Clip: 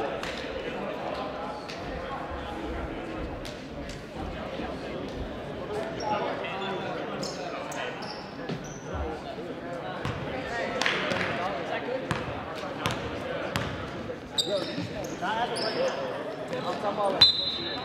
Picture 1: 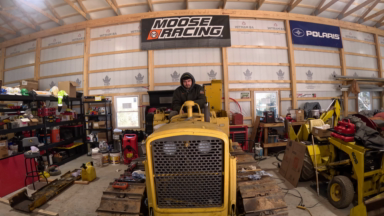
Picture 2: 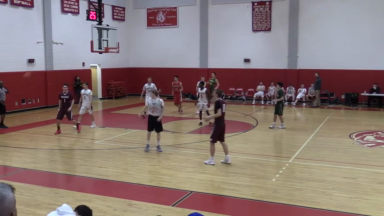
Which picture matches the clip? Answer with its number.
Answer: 2